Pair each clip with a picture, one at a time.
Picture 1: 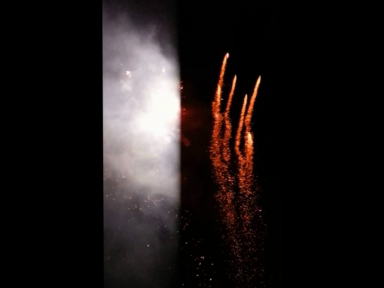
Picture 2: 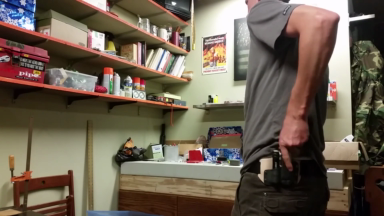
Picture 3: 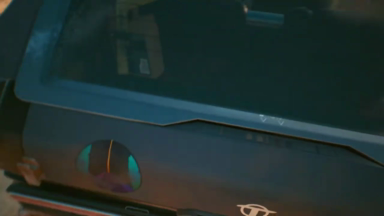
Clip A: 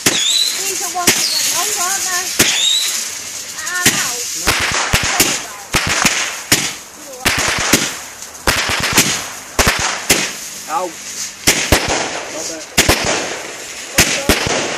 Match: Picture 1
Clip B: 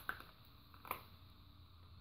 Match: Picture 2